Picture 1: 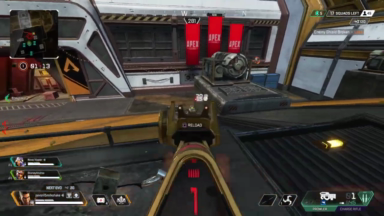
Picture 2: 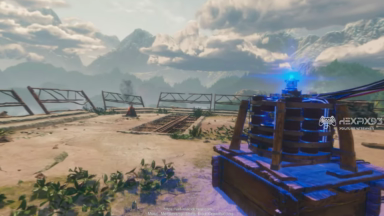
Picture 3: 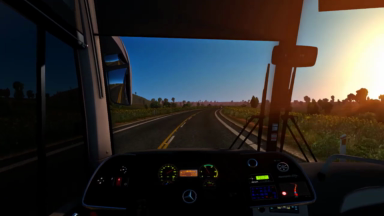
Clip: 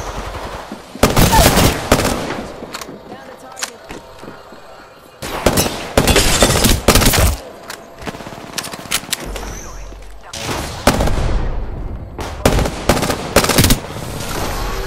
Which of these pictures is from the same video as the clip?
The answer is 1